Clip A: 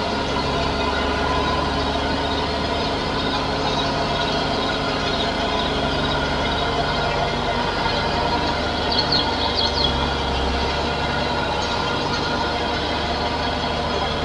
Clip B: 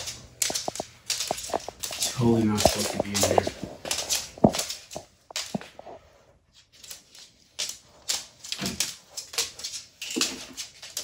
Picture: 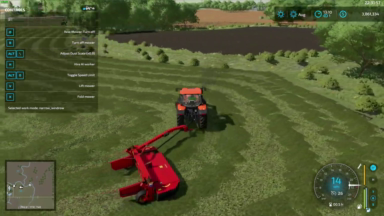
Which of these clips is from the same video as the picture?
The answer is A